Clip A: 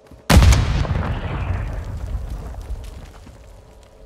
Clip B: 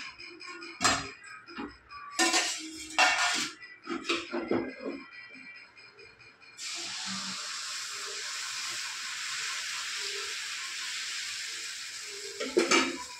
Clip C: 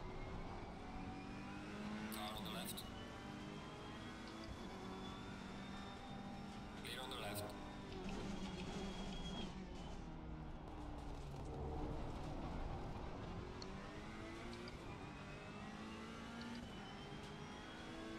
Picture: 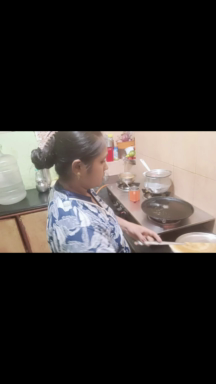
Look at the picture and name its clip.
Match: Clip B